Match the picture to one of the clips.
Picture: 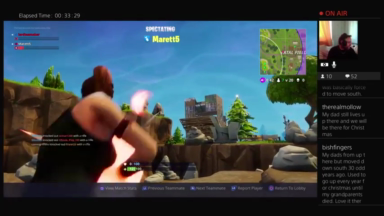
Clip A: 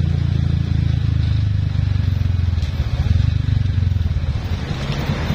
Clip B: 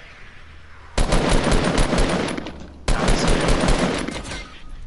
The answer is B